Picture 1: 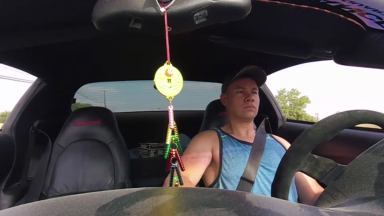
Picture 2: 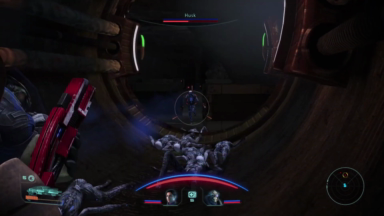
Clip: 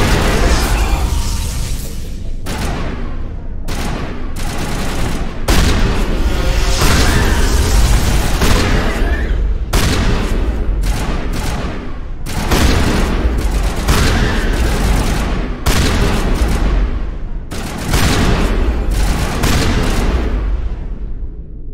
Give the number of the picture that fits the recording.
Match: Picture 2